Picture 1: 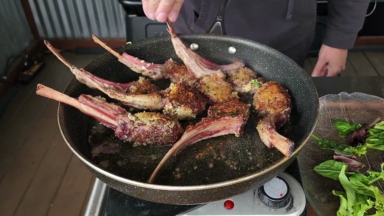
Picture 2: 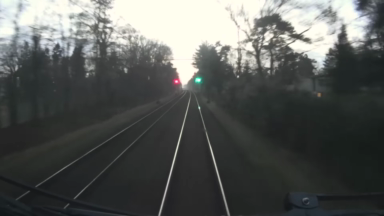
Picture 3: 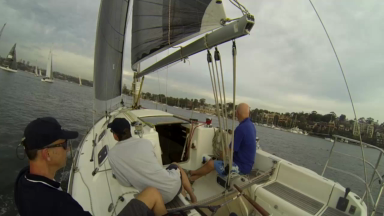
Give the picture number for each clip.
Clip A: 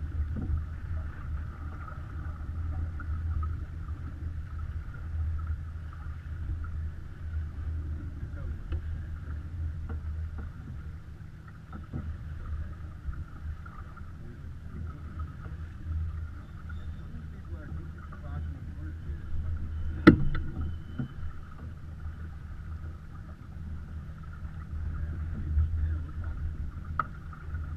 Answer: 3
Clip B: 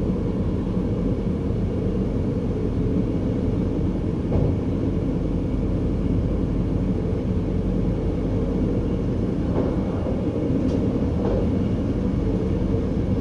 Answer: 2